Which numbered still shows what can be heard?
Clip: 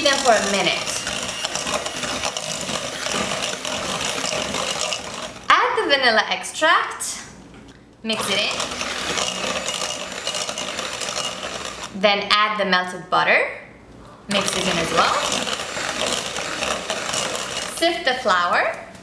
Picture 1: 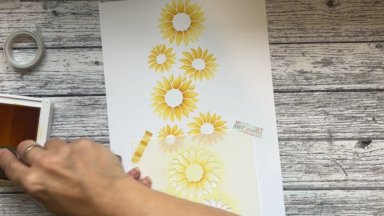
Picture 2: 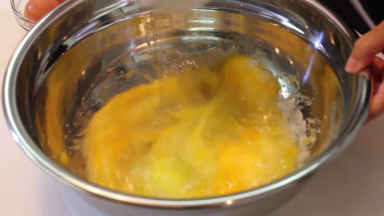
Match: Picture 2